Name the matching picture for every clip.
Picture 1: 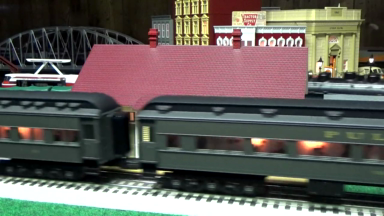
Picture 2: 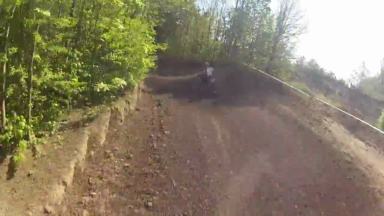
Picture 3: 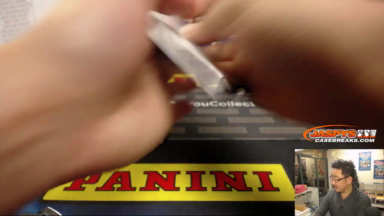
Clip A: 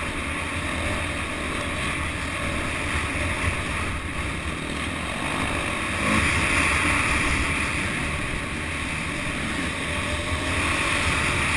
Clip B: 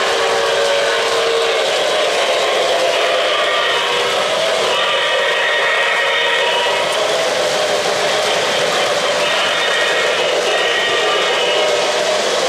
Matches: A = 2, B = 1